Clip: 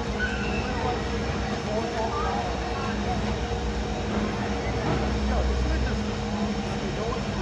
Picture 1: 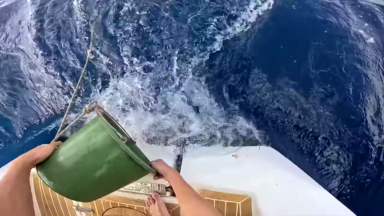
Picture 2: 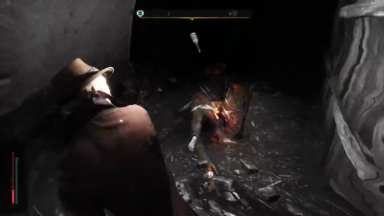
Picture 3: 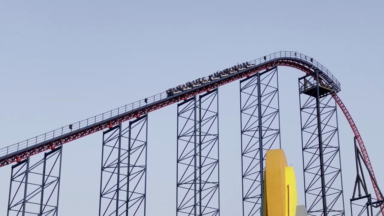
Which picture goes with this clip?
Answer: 3